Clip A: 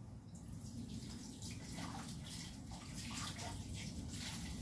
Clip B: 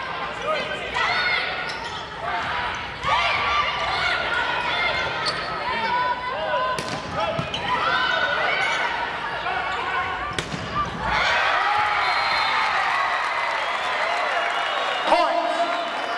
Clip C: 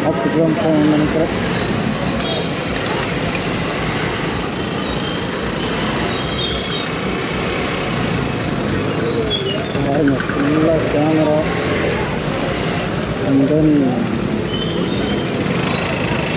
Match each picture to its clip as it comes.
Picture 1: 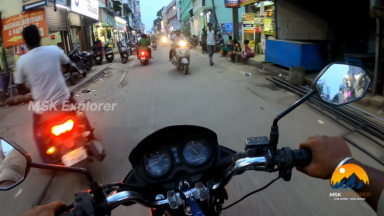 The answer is C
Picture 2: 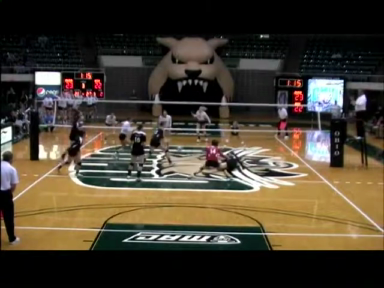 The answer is B